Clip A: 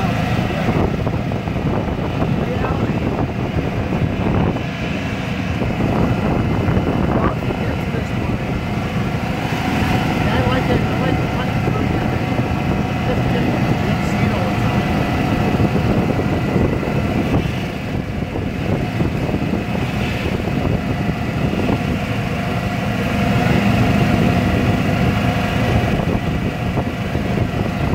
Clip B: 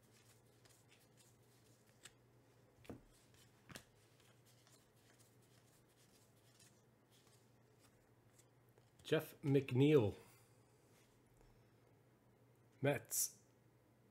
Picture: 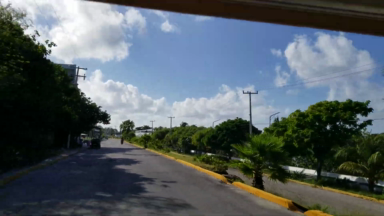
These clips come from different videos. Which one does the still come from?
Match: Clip A